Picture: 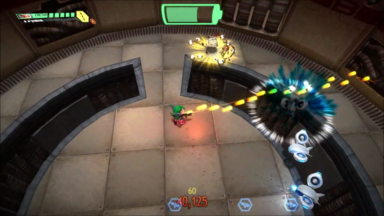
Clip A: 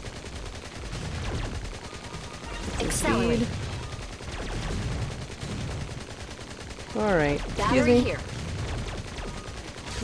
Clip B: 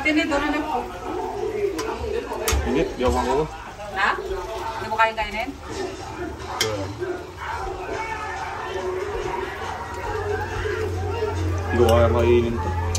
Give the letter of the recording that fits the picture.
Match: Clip A